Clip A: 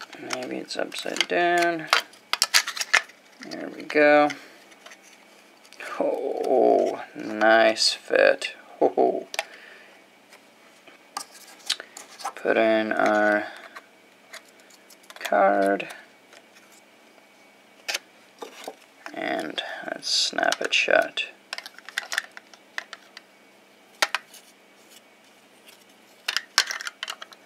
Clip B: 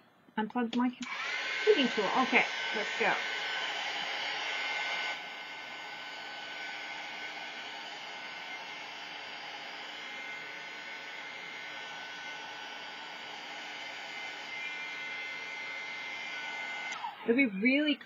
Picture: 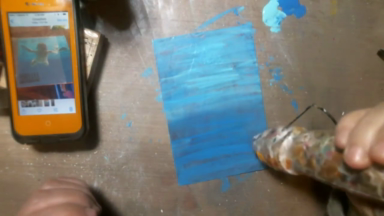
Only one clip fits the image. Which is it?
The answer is B